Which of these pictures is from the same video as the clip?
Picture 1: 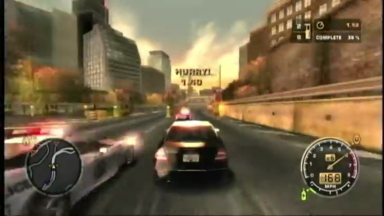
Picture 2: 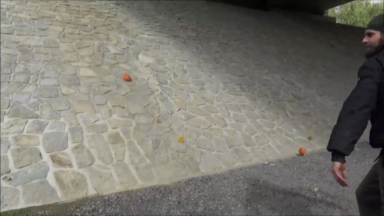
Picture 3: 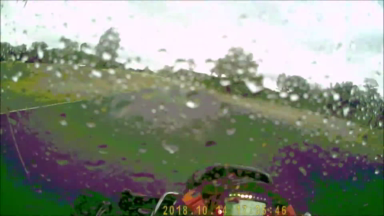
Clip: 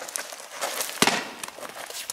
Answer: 2